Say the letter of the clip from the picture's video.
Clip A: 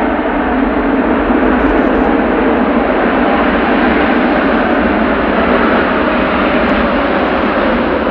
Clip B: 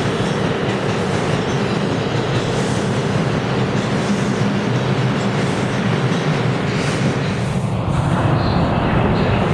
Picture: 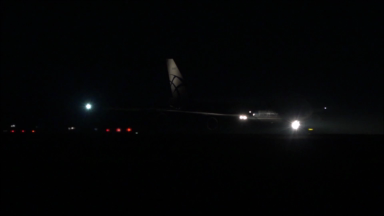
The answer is A